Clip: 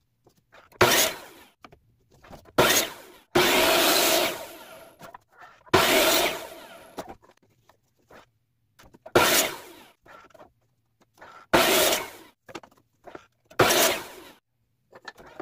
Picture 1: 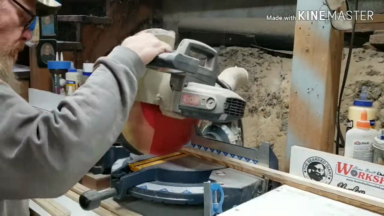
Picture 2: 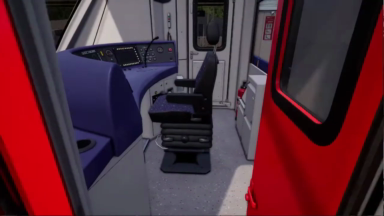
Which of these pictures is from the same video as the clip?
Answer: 1